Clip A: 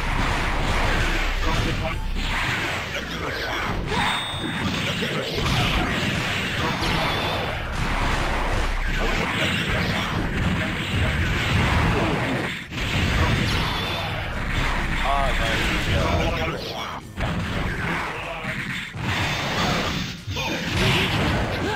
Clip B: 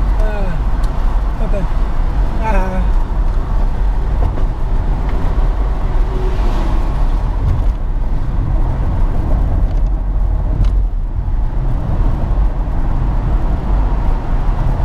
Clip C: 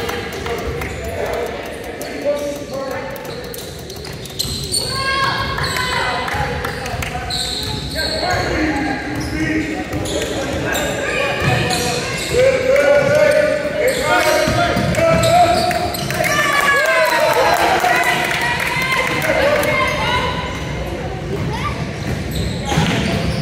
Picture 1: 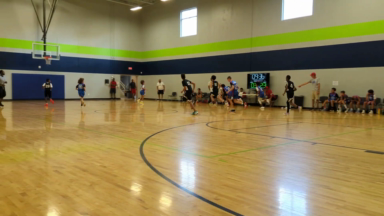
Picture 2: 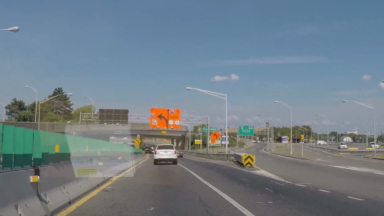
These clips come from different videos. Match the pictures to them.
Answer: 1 C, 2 B